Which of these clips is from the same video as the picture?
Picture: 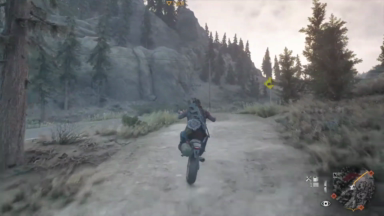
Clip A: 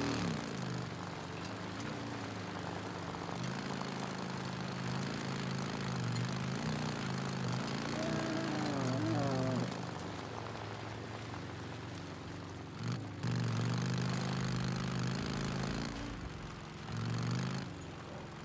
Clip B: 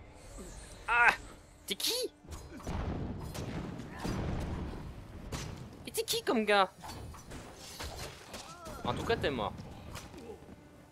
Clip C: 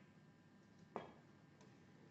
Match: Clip A